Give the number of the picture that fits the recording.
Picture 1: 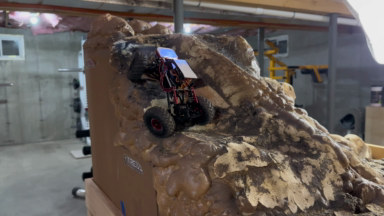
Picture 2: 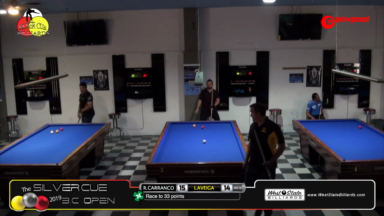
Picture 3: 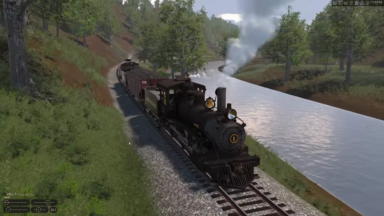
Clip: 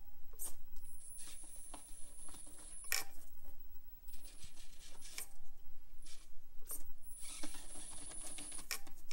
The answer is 1